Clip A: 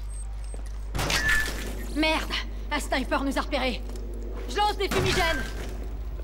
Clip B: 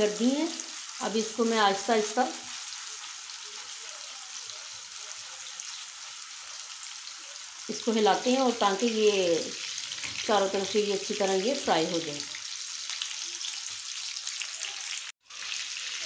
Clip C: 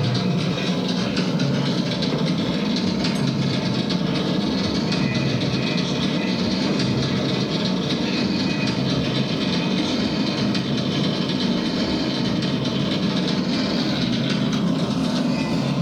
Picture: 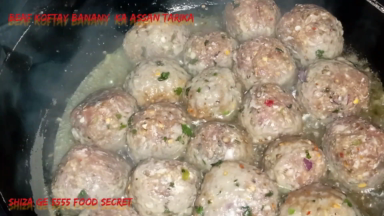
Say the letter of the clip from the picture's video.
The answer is B